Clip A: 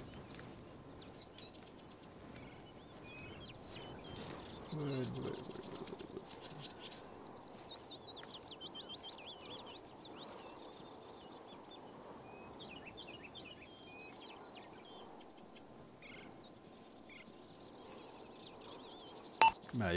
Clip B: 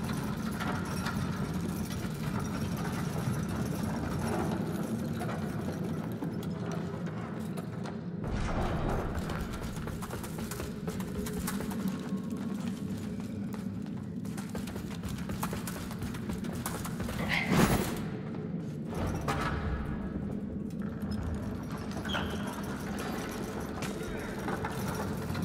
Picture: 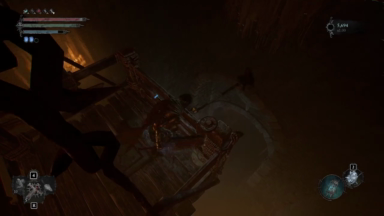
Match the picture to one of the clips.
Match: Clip B